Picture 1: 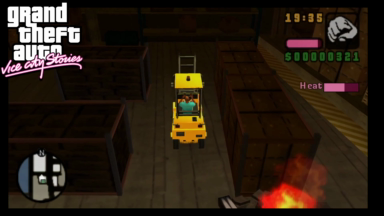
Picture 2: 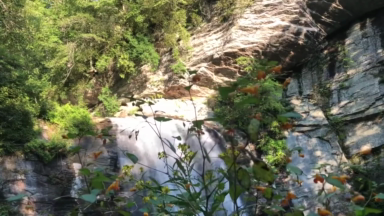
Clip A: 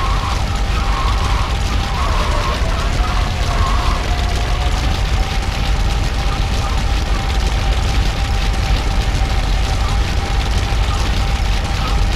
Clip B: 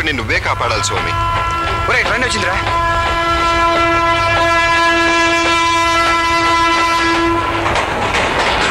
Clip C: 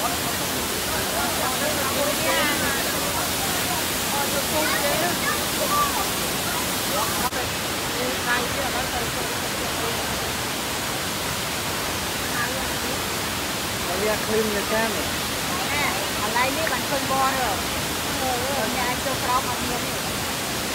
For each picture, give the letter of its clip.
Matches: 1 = A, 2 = C